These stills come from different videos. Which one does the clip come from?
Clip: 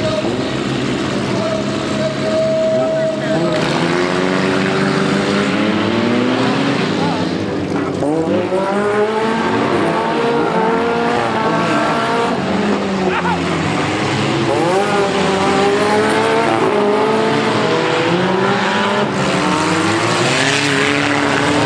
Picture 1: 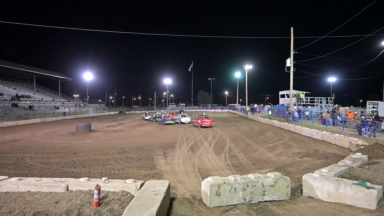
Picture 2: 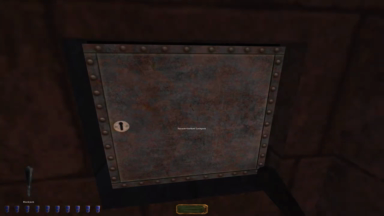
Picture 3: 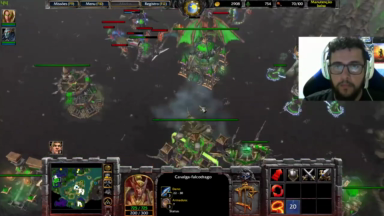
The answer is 1